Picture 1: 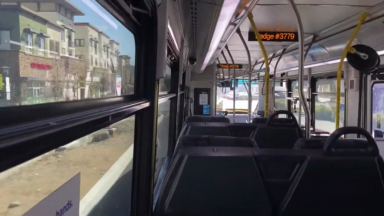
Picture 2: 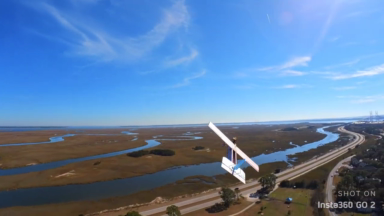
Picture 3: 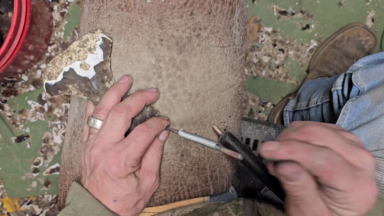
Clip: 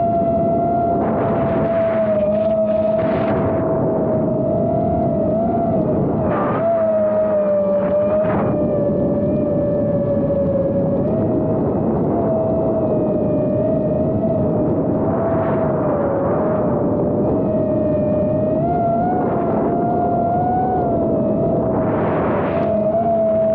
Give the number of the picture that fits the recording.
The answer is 2